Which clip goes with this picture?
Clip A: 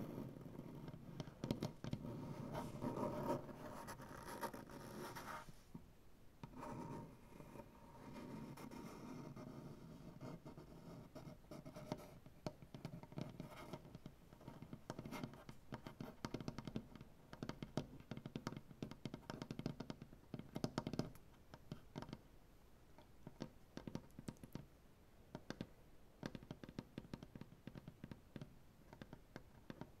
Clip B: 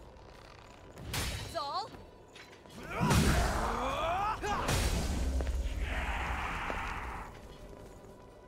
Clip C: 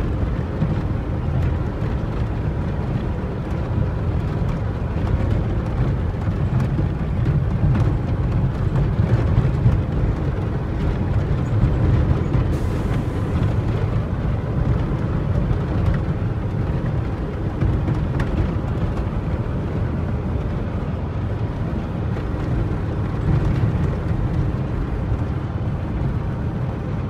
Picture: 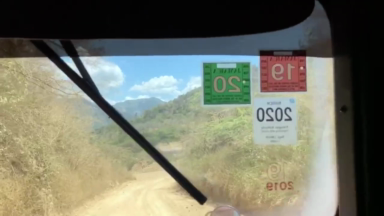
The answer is C